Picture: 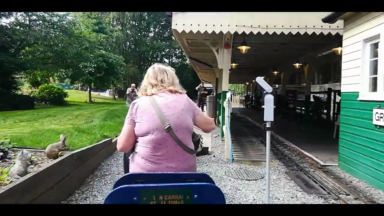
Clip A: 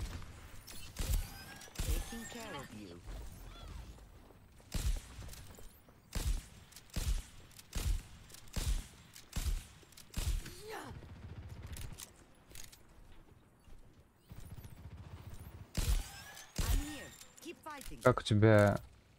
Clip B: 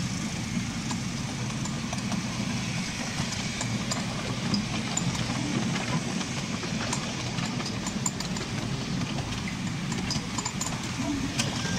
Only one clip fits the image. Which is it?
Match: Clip B